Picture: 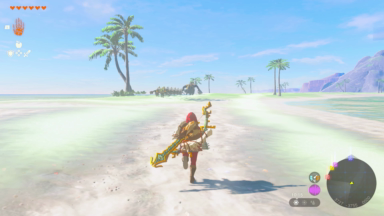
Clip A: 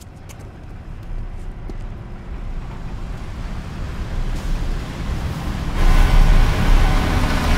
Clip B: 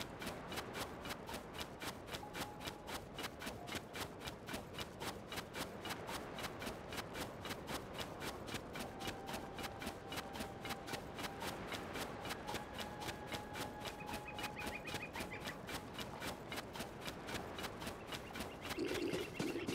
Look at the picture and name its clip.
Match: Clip B